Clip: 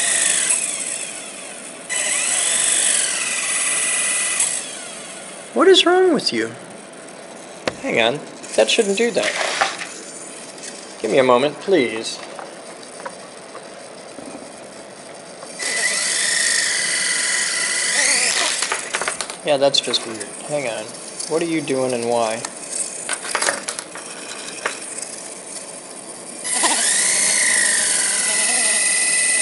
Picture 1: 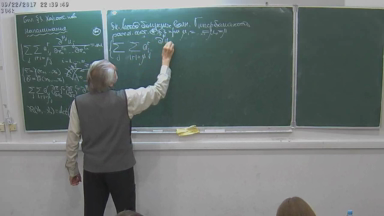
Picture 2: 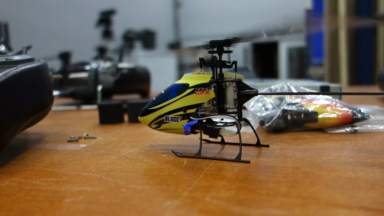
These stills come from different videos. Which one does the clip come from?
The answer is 2